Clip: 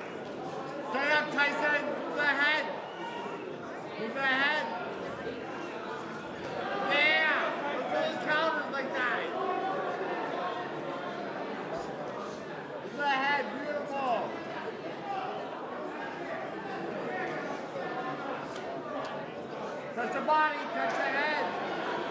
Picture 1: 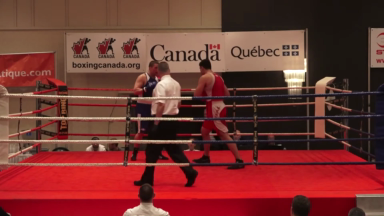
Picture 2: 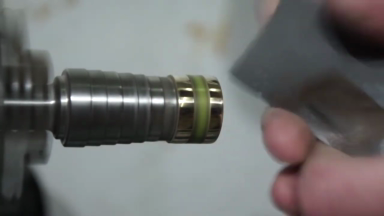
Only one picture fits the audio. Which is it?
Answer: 1